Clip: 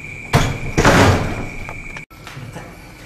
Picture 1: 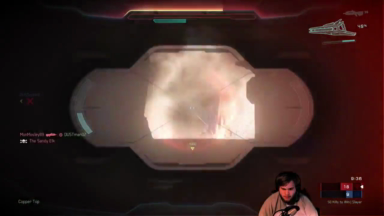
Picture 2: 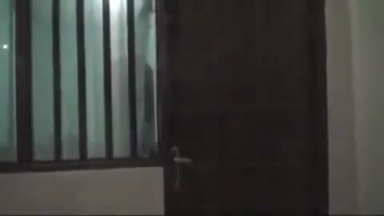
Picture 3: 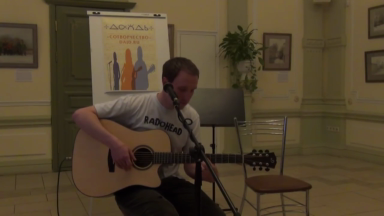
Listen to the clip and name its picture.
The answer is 2